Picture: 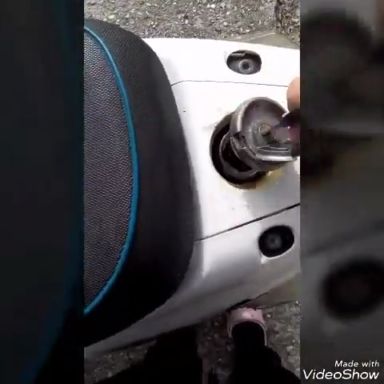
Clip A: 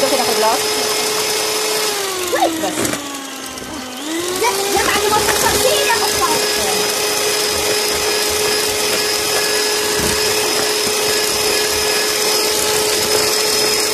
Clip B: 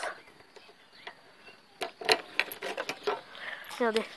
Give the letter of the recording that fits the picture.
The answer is B